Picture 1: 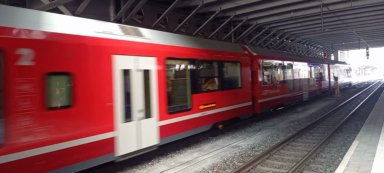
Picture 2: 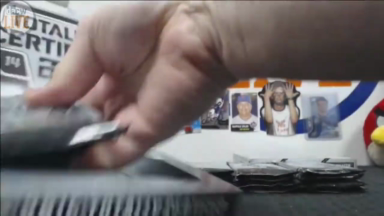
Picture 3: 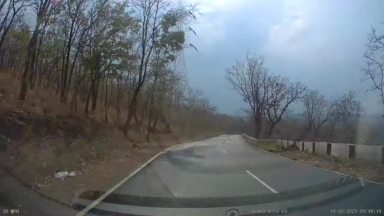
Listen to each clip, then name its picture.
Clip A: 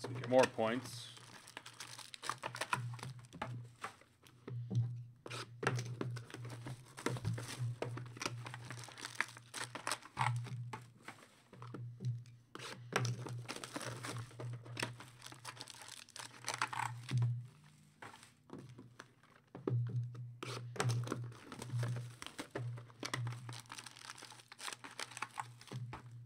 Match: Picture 2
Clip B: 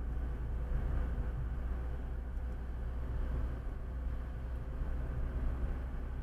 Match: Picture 3